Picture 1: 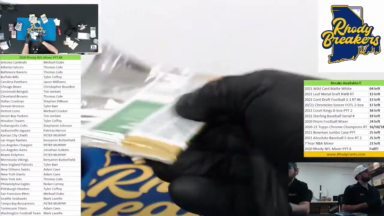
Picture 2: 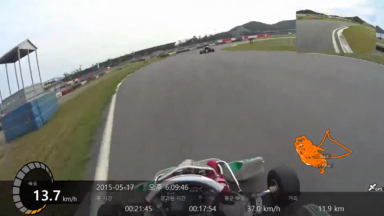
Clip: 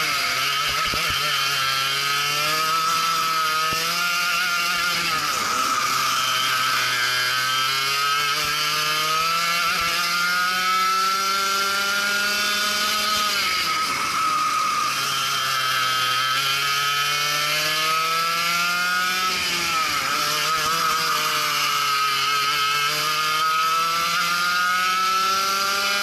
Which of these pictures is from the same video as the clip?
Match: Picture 2